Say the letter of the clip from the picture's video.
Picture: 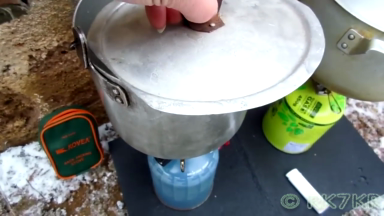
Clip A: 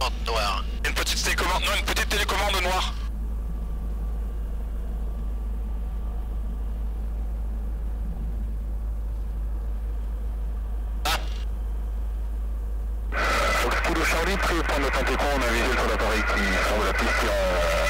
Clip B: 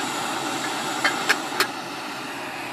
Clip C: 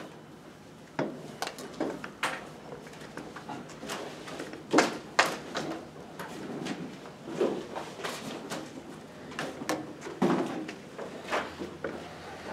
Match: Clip B